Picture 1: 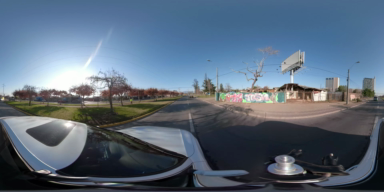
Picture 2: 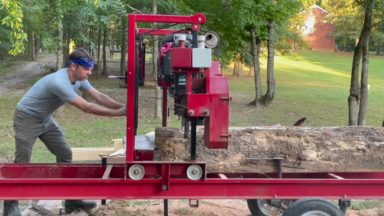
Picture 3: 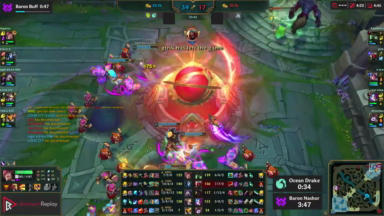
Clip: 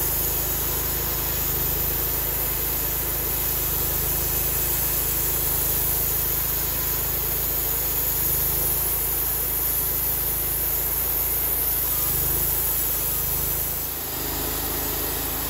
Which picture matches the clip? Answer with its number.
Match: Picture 2